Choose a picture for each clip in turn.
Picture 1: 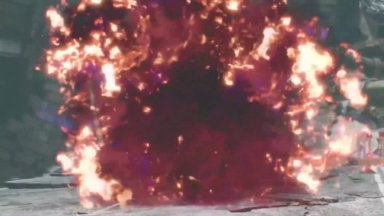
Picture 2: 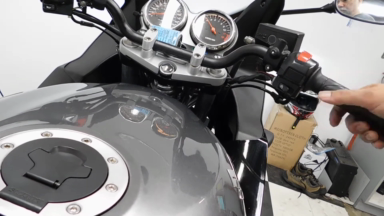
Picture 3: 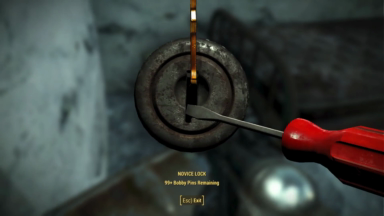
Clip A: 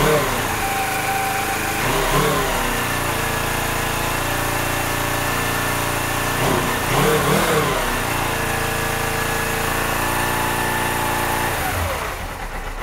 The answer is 2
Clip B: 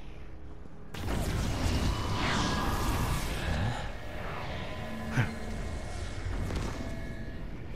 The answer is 1